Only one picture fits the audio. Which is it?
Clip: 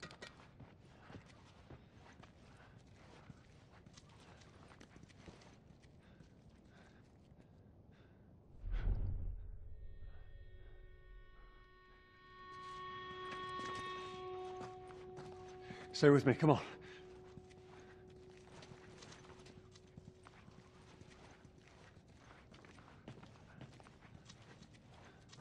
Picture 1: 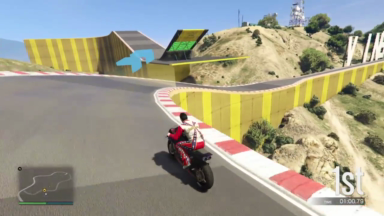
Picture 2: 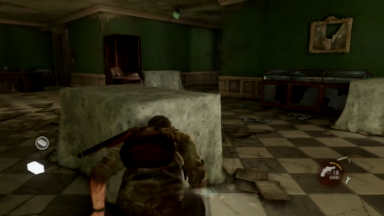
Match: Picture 2